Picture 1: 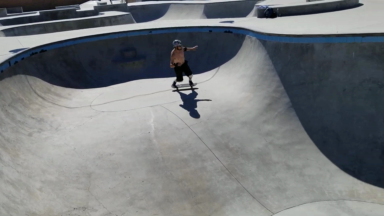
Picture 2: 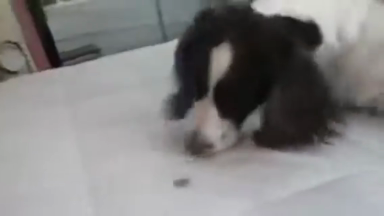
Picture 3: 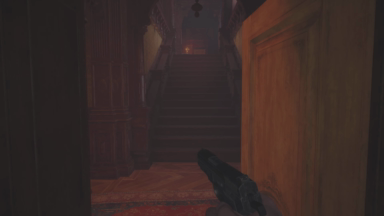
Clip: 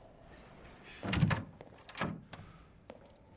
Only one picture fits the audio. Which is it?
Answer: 3